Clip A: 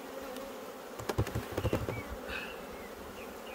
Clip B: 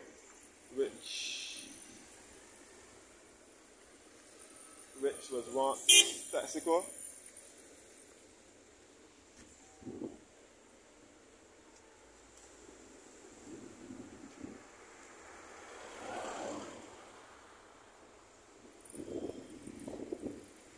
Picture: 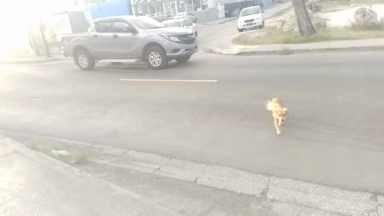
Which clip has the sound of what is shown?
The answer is B